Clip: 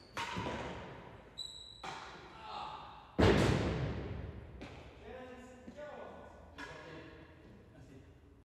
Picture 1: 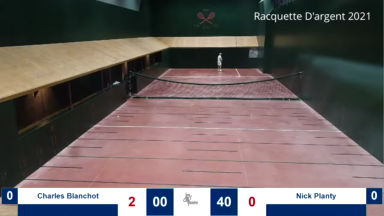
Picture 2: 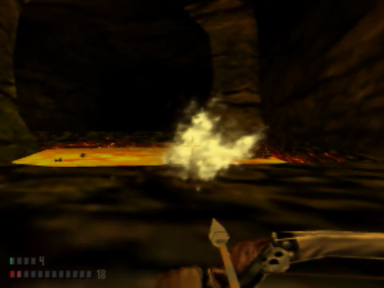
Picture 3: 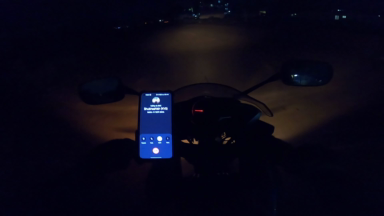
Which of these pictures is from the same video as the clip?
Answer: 1